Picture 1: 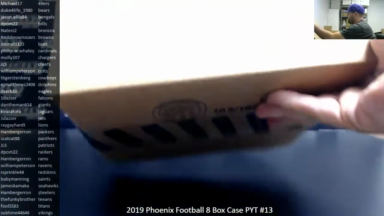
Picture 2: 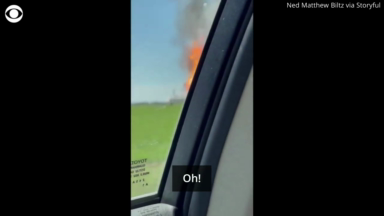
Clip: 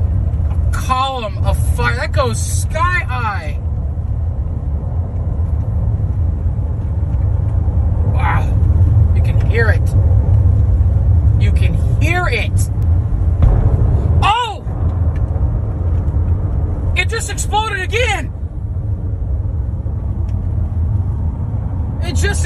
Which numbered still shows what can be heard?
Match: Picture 2